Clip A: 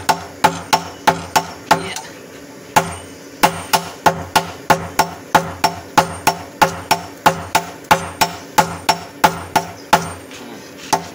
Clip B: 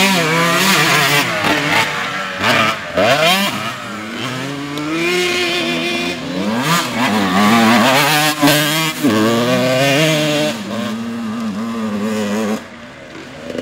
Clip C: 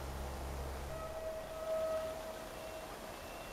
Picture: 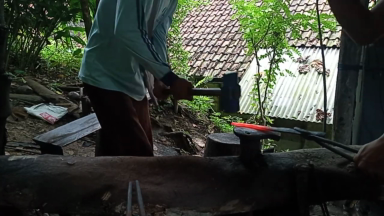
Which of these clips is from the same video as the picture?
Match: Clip A